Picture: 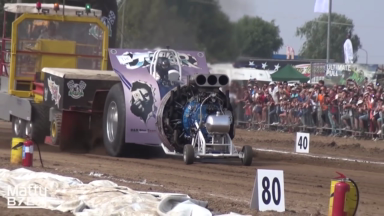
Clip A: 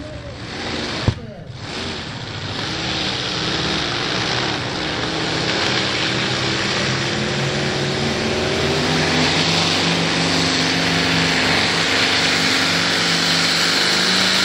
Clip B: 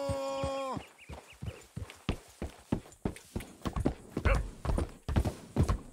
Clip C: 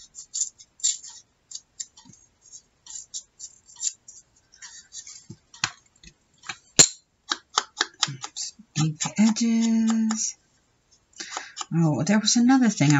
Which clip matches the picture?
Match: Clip A